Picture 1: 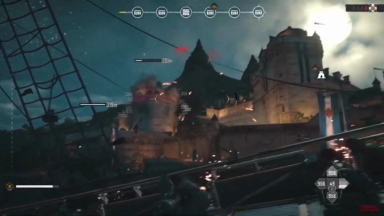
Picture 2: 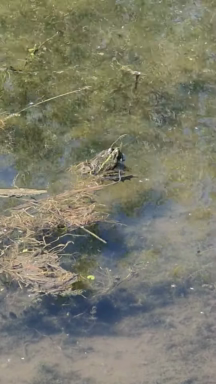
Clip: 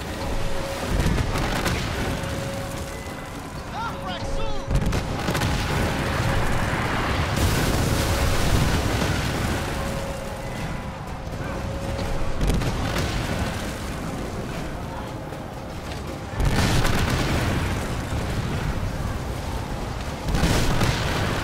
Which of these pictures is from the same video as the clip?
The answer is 1